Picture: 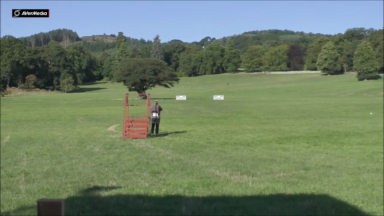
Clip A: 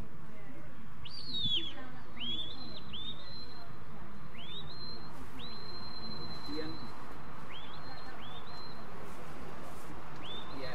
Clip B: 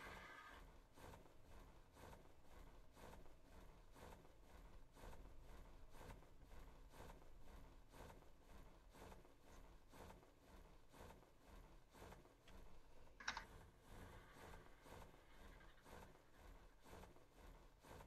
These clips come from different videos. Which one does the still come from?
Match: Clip A